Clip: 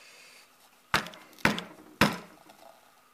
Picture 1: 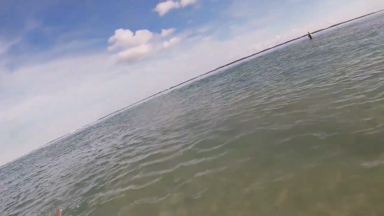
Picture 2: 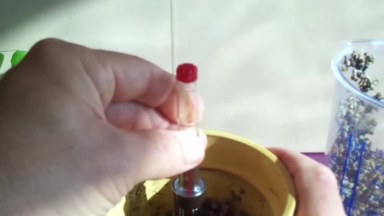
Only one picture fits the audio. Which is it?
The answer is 2